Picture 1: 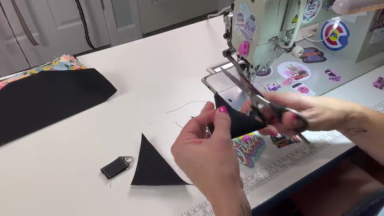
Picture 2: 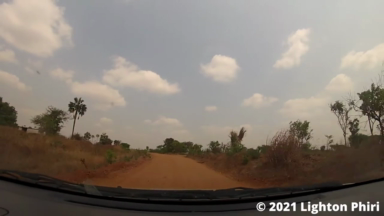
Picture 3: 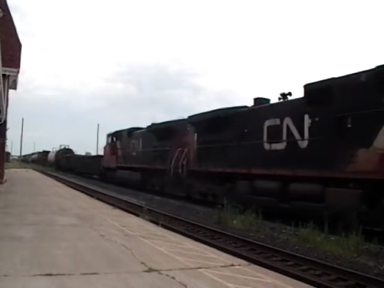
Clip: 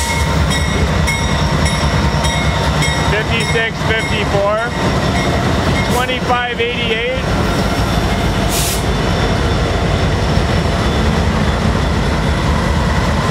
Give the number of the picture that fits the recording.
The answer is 3